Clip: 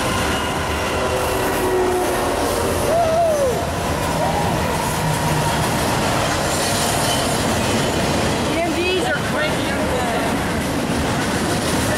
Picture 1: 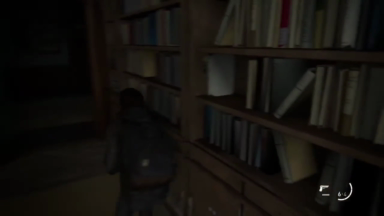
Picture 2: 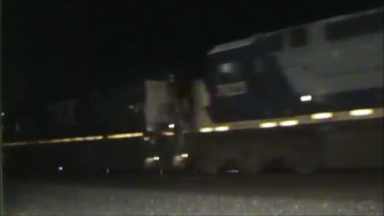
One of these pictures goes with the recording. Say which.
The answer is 2